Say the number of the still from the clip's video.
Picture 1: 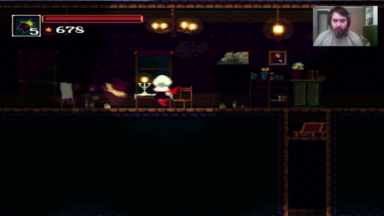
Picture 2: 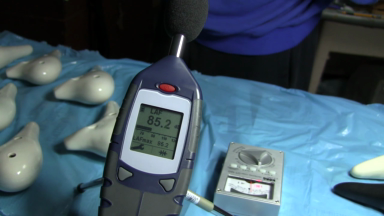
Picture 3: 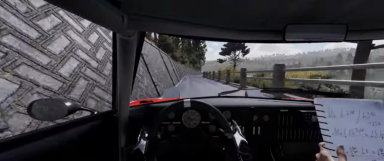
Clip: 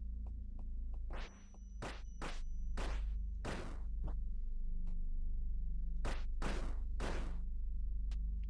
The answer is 1